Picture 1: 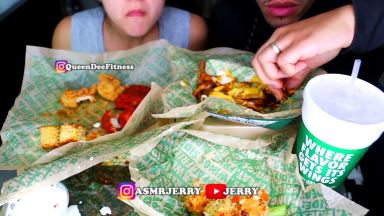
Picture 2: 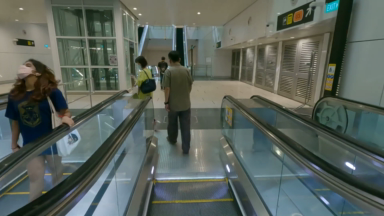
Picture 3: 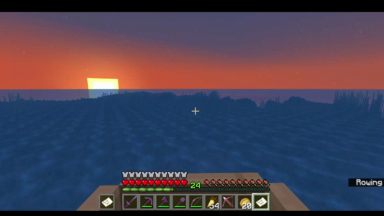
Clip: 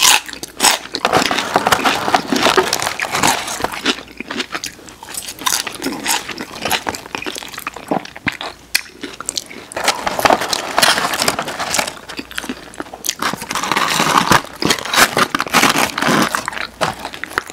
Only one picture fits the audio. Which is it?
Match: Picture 1